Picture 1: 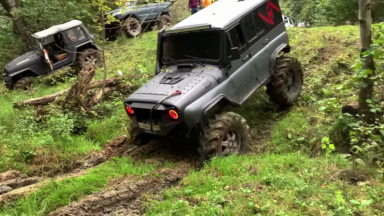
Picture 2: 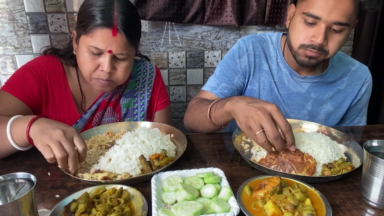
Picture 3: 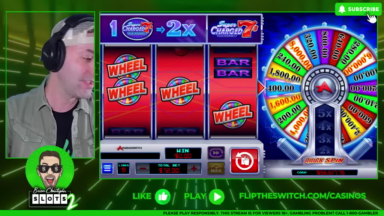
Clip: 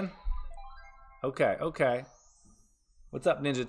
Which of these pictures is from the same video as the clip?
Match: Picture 3